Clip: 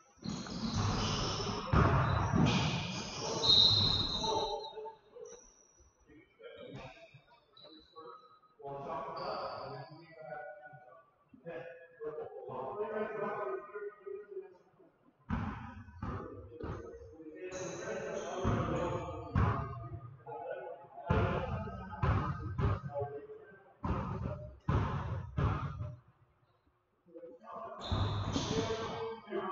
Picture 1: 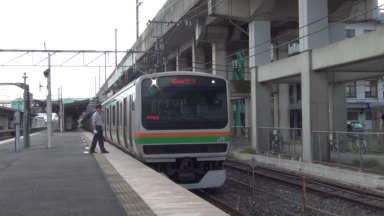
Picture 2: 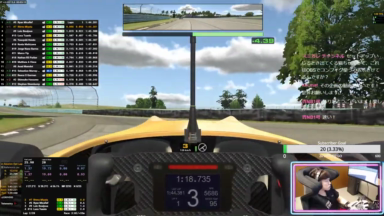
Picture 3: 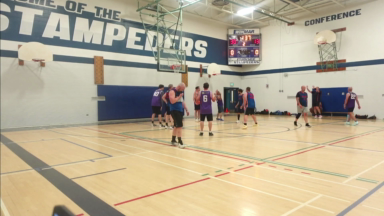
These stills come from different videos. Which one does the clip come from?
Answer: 3